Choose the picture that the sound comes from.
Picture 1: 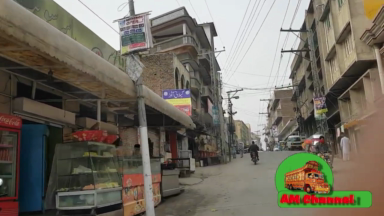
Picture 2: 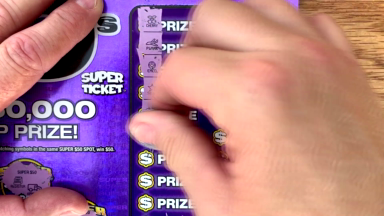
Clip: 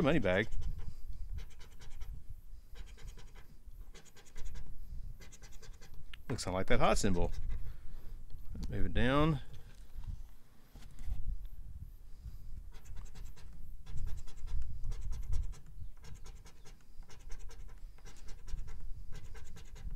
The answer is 2